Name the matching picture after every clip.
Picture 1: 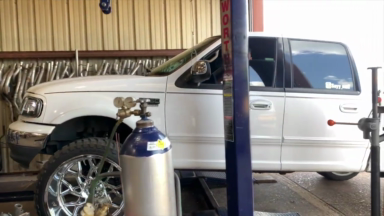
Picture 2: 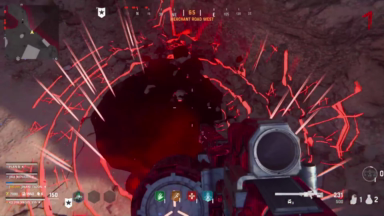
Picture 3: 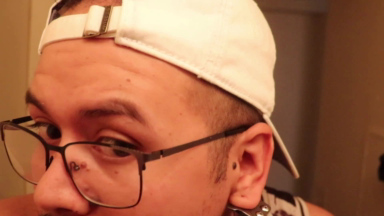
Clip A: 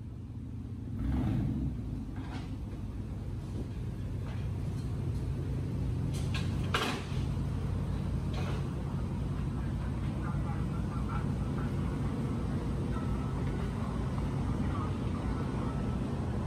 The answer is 1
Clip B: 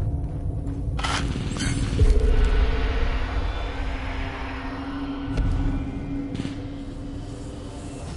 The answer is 2